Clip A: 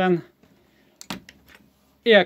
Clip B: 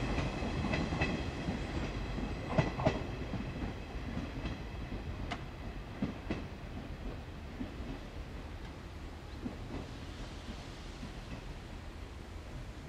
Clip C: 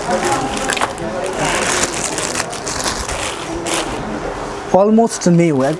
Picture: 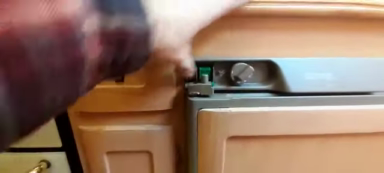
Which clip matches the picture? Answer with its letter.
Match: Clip A